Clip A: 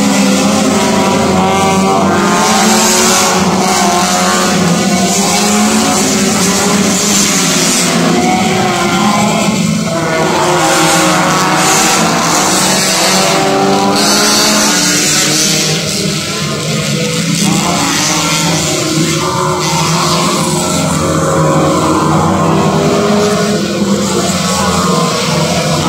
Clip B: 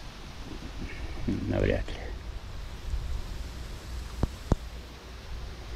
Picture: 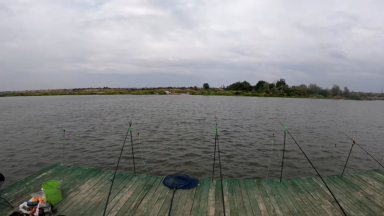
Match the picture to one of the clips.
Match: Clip B